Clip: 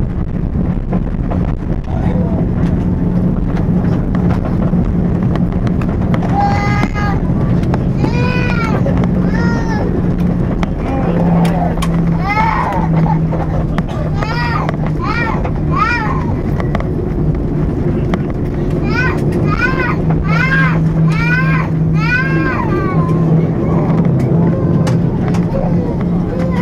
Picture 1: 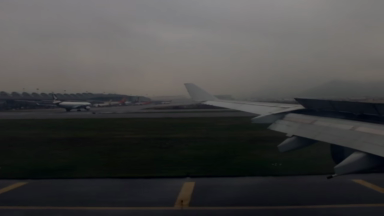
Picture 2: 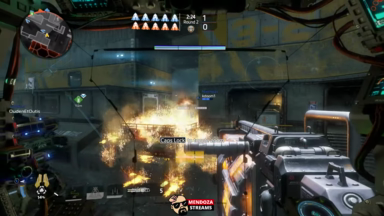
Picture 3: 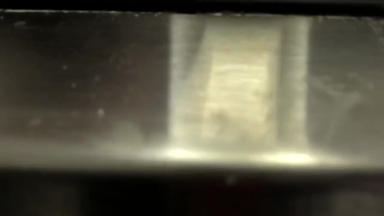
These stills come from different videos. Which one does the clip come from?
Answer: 1